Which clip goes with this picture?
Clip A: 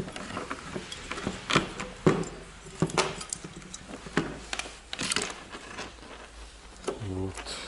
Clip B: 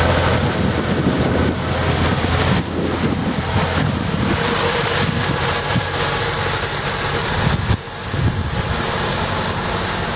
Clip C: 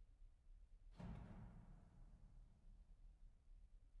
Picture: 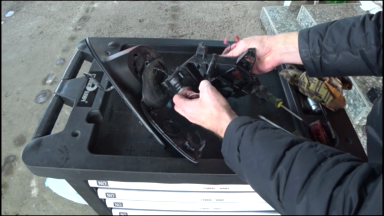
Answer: A